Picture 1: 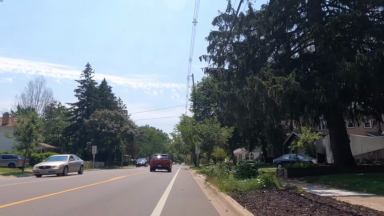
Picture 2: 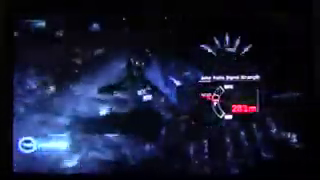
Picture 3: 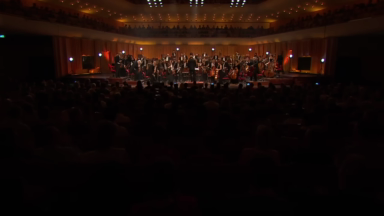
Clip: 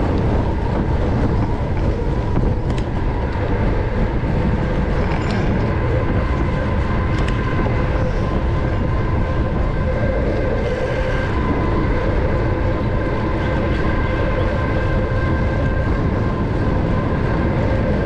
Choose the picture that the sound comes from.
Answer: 1